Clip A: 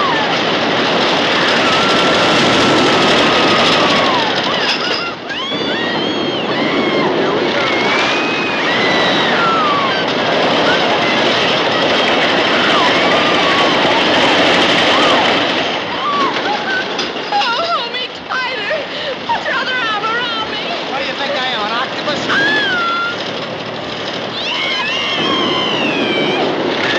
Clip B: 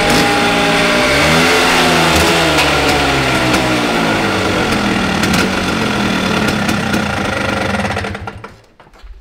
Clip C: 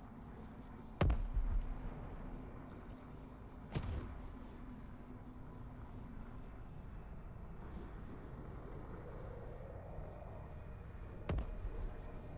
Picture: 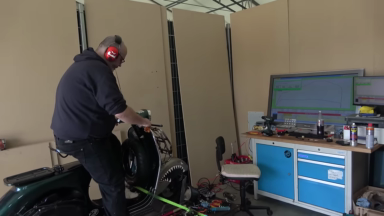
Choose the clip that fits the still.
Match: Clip B